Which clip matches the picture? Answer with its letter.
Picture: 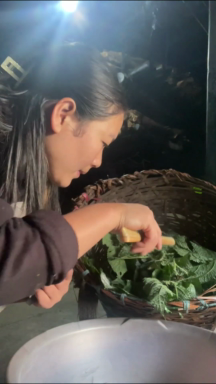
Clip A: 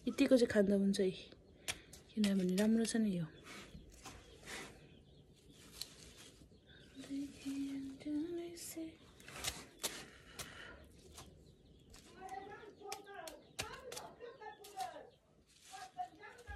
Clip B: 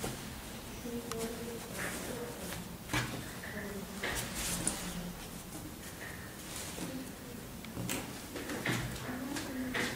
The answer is A